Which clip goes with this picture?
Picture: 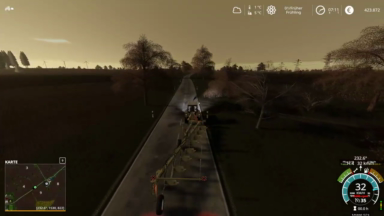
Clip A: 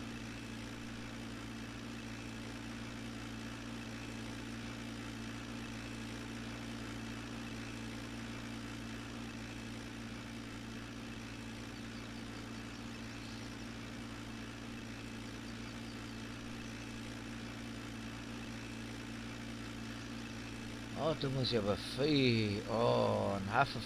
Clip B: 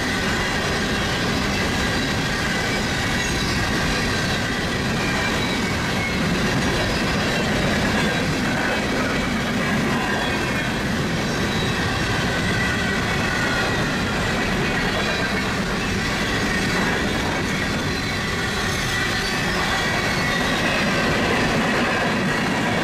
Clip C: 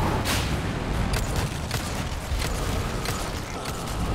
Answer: A